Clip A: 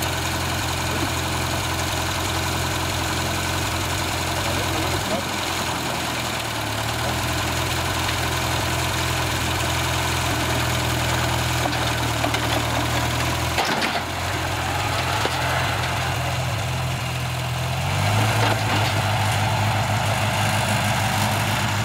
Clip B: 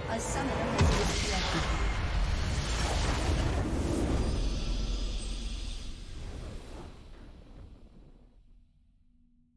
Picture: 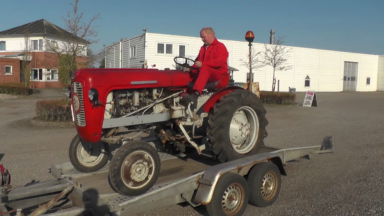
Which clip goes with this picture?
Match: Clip A